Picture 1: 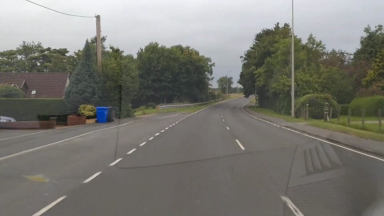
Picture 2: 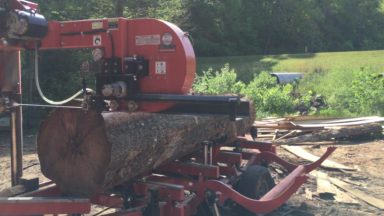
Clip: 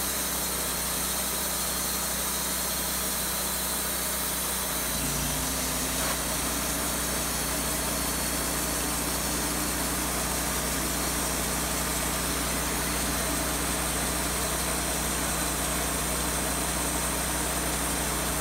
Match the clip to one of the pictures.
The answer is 2